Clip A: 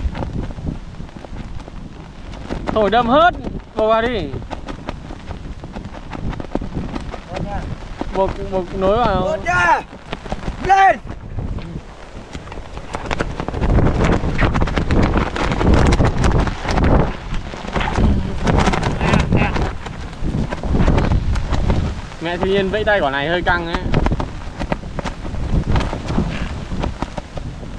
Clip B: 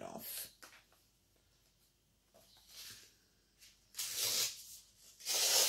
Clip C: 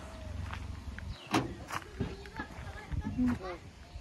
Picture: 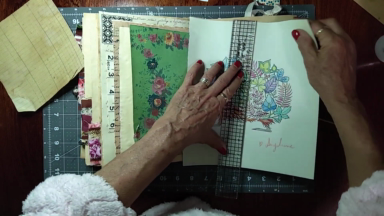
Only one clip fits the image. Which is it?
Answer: B